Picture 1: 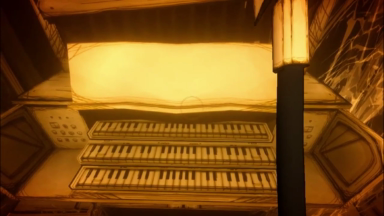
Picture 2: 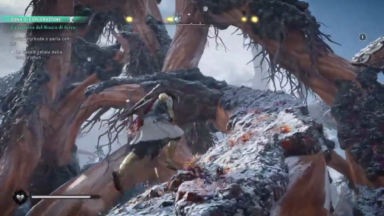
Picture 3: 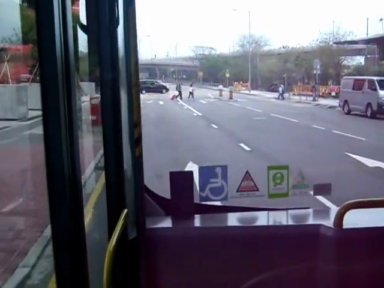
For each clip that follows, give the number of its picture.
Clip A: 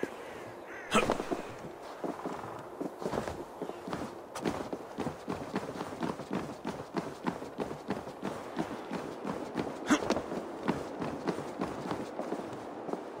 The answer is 2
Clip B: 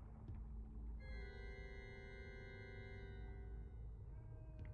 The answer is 1